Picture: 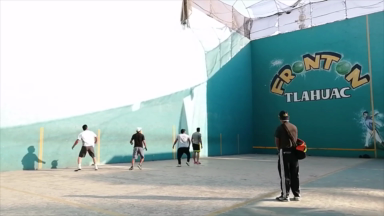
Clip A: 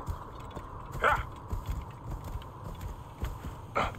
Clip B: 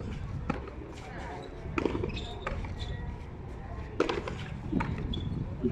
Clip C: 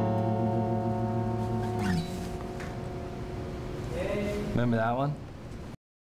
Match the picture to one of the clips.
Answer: B